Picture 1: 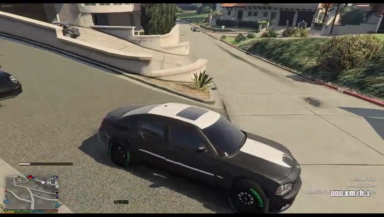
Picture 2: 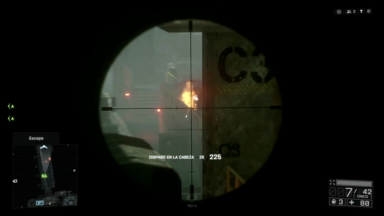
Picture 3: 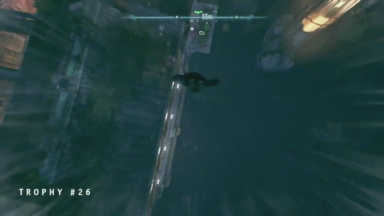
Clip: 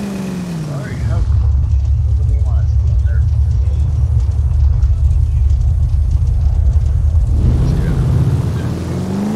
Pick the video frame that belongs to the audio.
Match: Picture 1